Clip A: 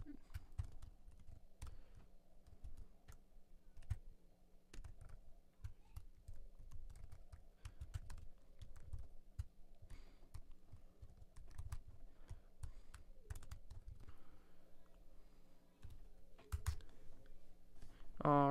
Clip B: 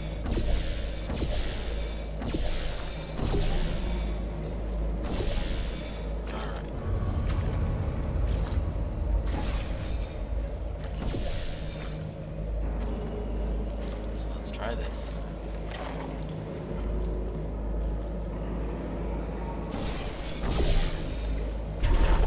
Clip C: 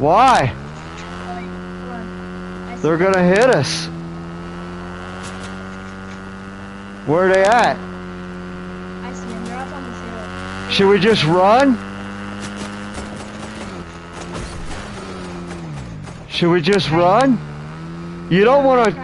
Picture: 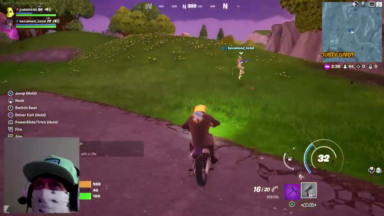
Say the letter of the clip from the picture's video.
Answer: C